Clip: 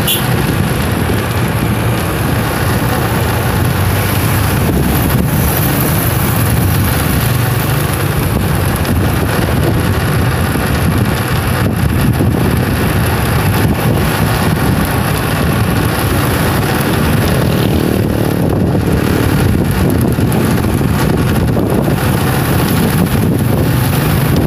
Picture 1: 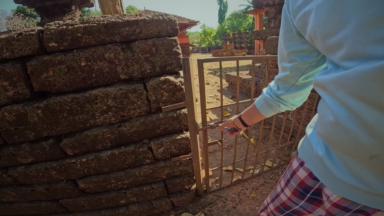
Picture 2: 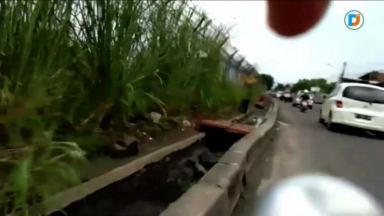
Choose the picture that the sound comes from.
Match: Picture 2